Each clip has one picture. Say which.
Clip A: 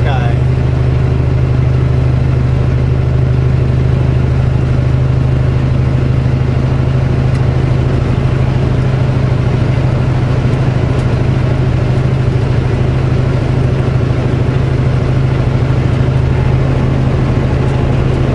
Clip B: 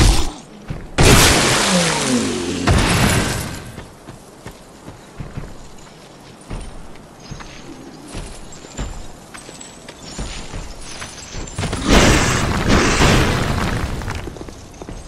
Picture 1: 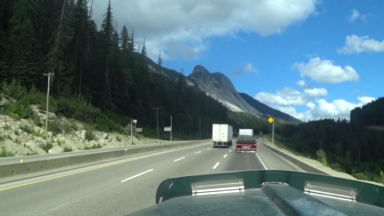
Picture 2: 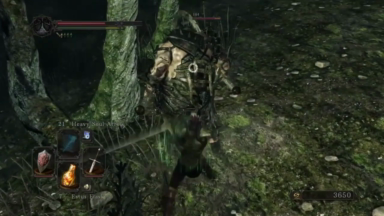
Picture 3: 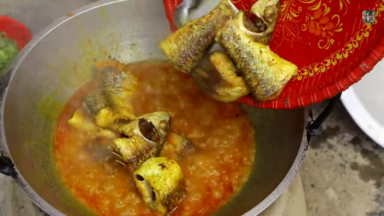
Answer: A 1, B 2